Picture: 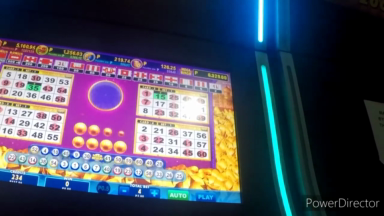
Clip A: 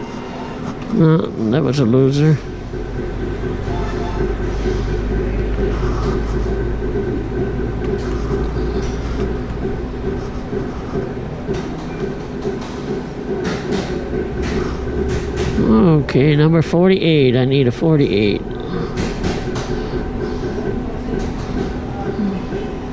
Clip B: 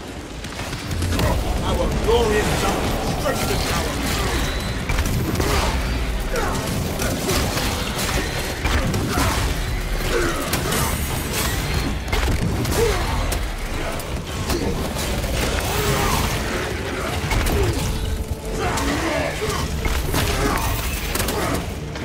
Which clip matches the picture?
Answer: A